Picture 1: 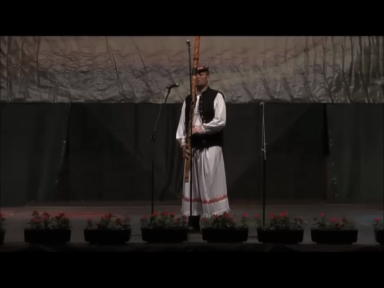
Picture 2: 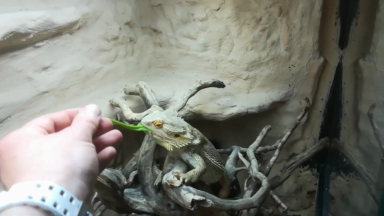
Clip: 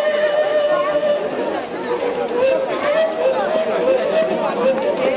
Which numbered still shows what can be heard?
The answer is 1